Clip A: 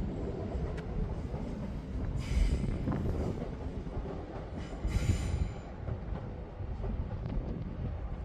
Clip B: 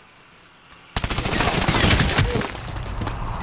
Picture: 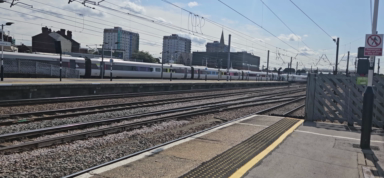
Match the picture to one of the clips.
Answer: A